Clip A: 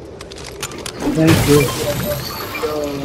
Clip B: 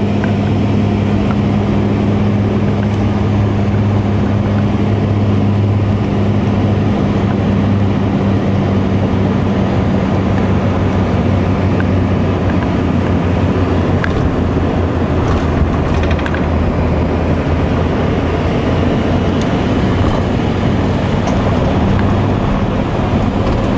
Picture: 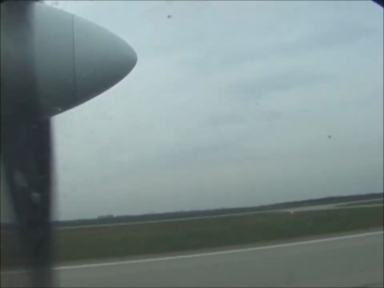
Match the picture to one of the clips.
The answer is B